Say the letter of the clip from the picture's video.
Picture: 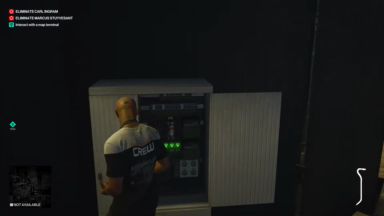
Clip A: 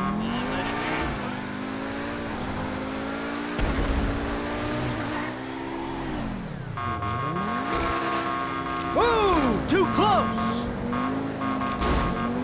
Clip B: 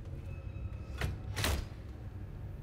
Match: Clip B